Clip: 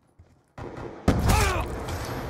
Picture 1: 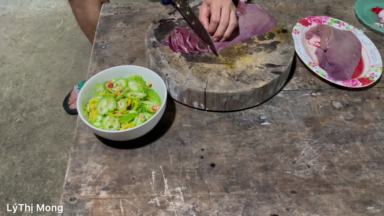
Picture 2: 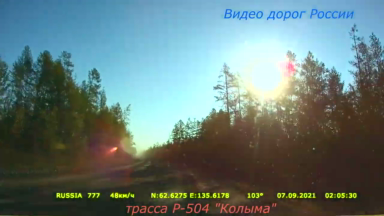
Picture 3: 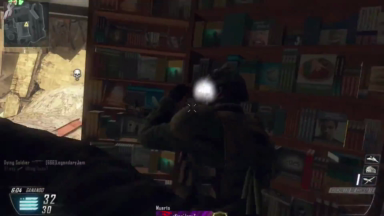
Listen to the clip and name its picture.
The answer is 3